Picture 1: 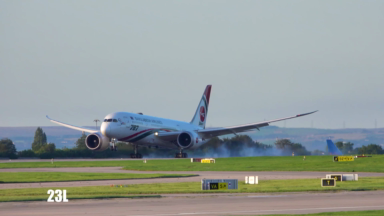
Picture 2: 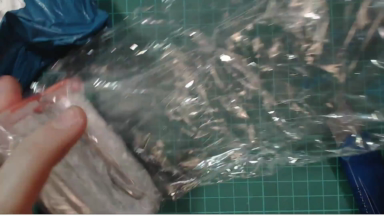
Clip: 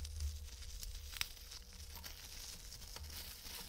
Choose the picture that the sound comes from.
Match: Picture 2